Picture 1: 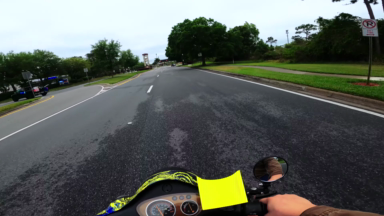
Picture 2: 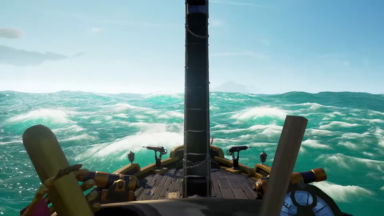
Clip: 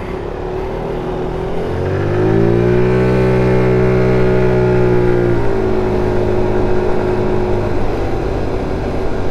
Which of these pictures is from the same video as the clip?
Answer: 1